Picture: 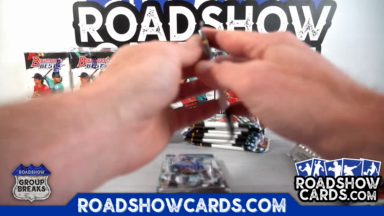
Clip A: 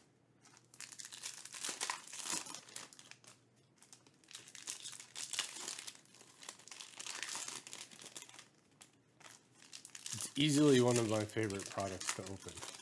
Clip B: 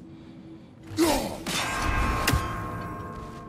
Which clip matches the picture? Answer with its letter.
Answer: A